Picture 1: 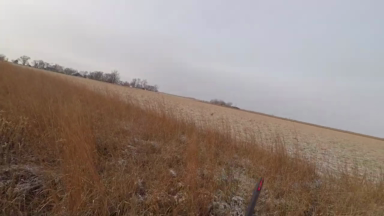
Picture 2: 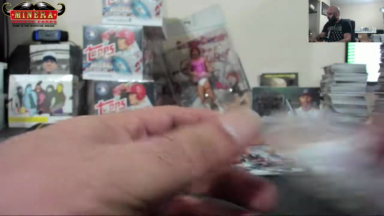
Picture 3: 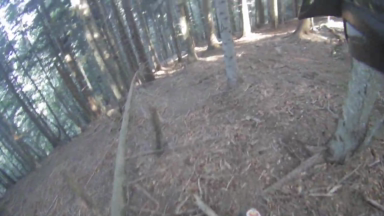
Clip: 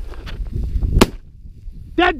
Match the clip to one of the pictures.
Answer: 1